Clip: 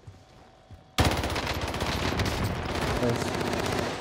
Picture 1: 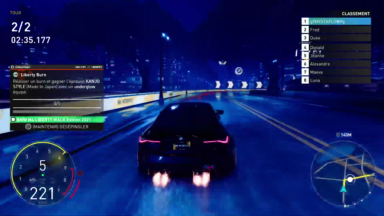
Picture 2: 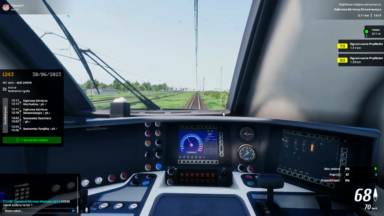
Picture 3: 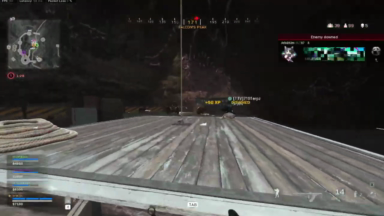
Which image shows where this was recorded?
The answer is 3